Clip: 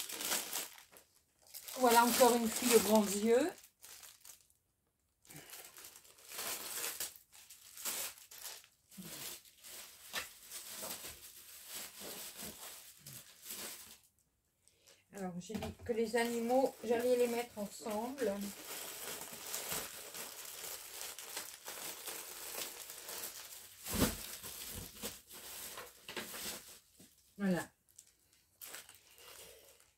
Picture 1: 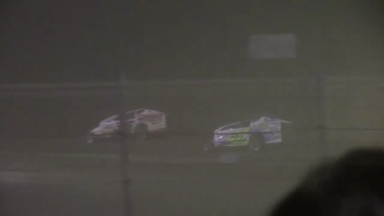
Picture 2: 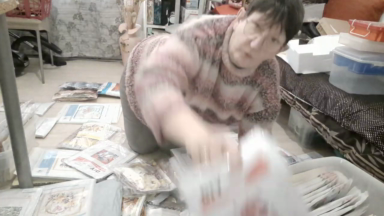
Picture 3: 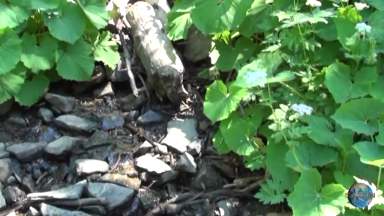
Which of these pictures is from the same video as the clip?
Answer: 2